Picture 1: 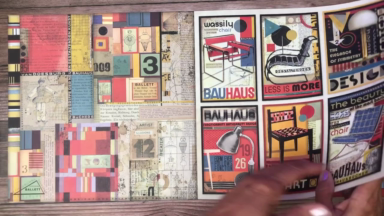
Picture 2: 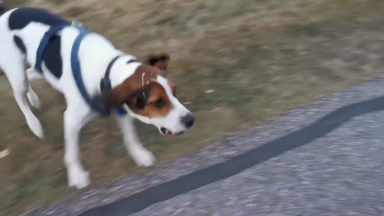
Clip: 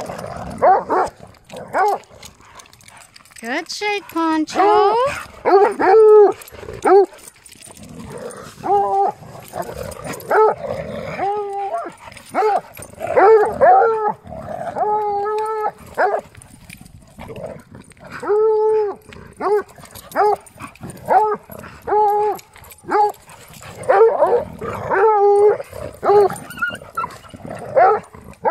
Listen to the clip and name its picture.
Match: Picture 2